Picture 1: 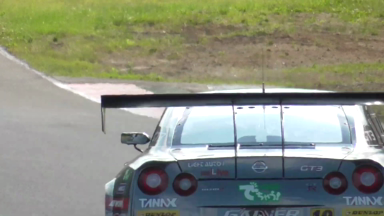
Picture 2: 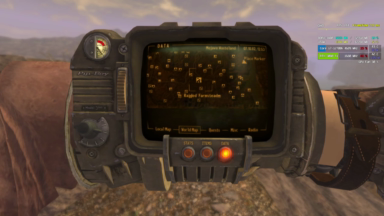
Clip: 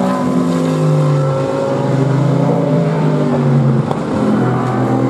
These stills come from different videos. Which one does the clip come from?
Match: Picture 1